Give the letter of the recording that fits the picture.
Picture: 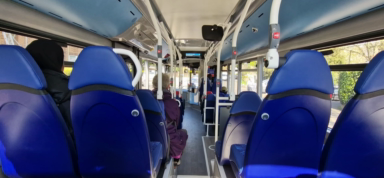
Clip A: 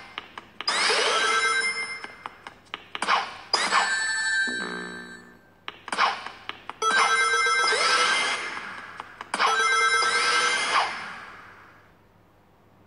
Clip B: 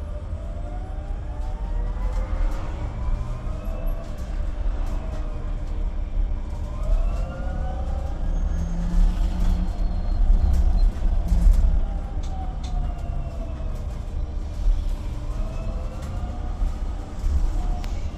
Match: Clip B